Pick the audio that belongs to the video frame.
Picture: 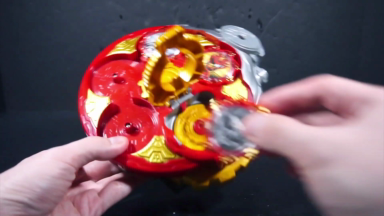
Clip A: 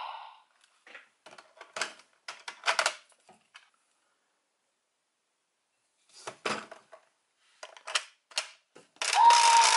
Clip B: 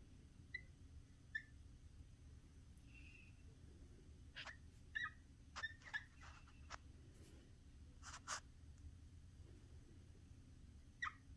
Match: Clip A